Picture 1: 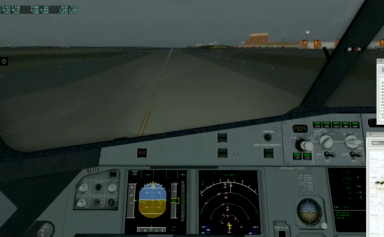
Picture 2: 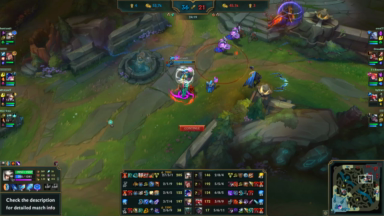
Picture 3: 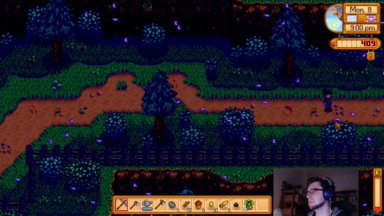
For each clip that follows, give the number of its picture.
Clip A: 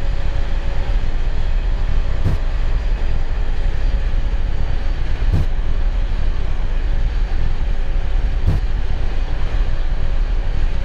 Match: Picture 1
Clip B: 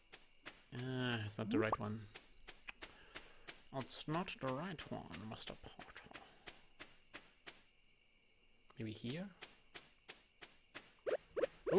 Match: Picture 3